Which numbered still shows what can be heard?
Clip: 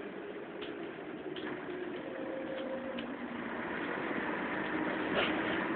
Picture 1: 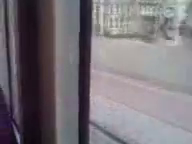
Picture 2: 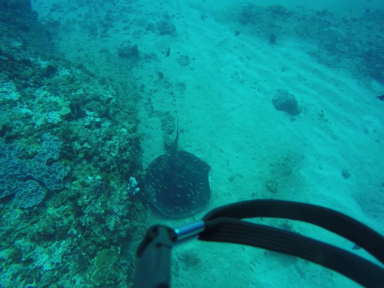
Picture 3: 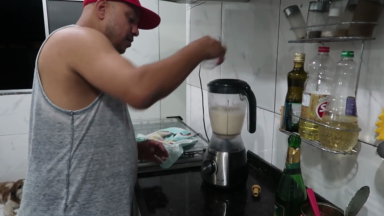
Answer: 1